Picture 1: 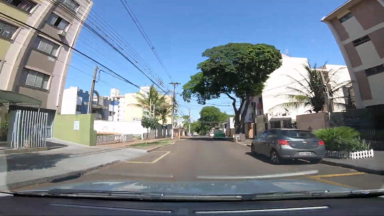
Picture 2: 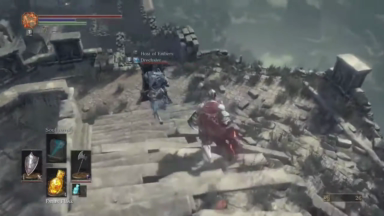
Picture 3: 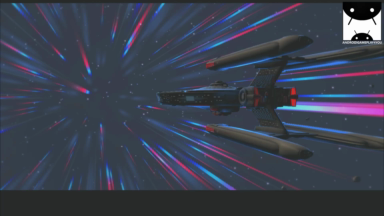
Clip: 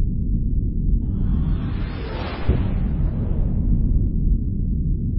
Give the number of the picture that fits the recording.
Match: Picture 3